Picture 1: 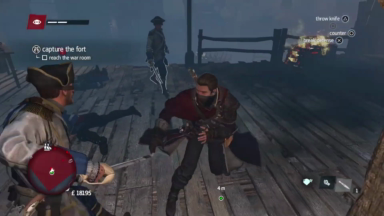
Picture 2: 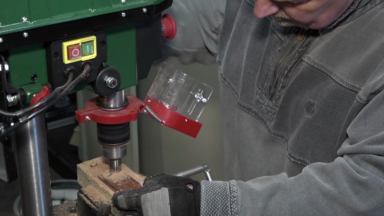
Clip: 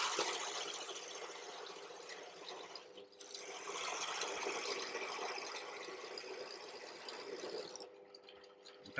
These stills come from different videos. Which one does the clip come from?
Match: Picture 2